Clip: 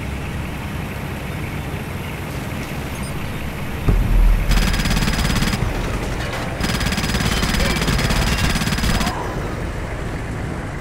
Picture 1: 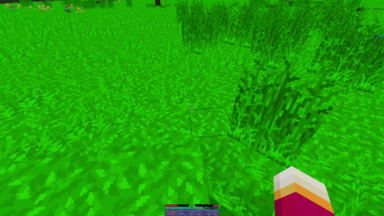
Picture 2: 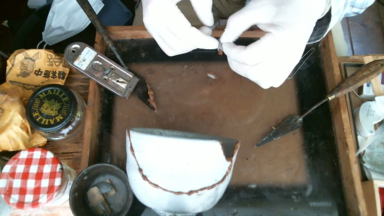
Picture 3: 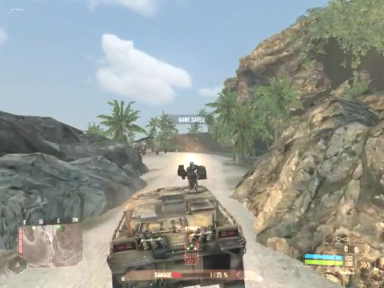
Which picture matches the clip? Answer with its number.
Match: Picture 3